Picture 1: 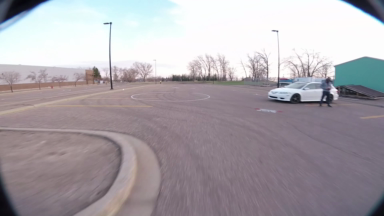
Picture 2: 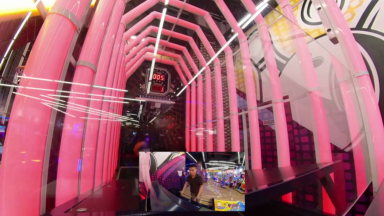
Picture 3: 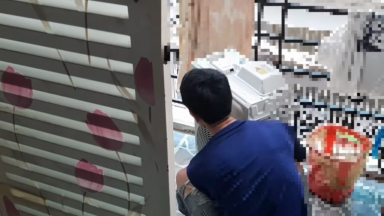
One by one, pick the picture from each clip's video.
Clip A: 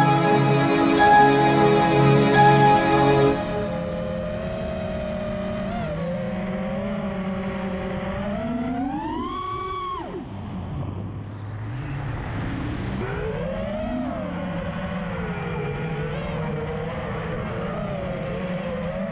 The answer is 1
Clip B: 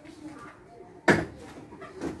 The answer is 3